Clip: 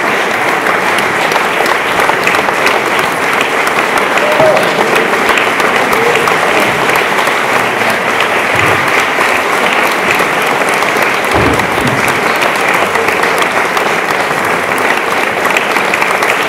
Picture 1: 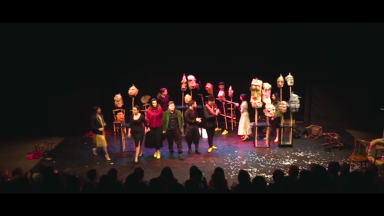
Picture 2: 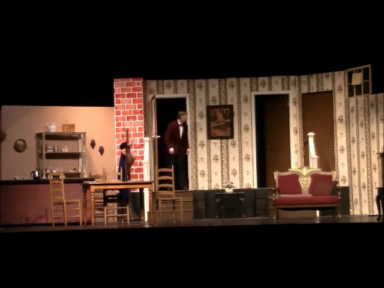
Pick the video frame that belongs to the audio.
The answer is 1